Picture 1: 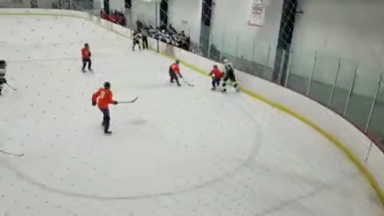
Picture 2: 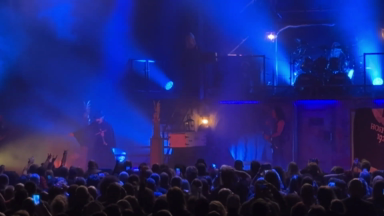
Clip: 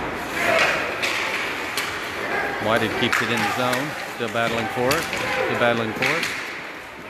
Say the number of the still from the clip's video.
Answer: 1